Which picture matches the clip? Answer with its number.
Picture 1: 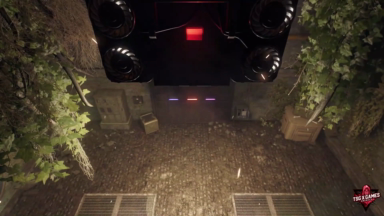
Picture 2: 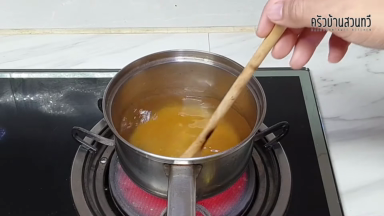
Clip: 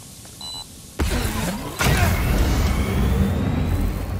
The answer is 1